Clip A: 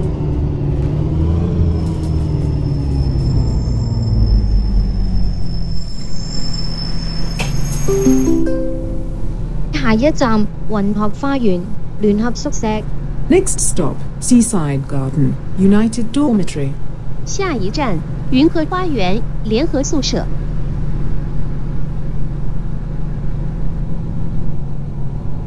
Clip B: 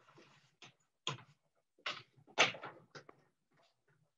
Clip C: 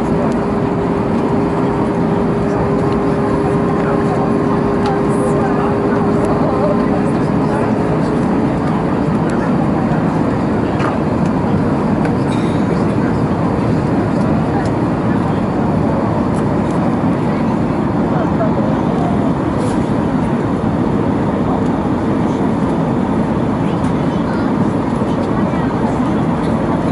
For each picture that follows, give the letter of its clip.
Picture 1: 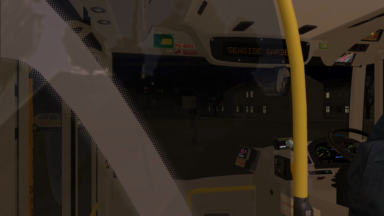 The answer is A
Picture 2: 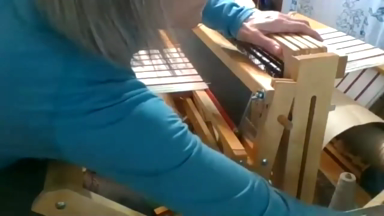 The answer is B